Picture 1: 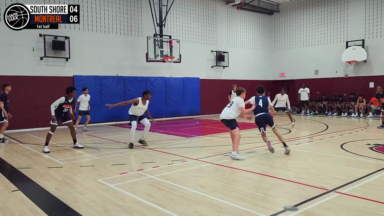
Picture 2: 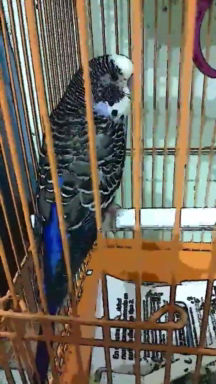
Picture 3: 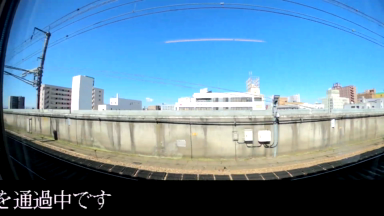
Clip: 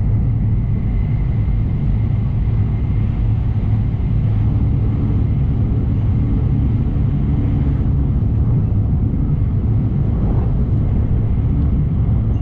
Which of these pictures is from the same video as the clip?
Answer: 3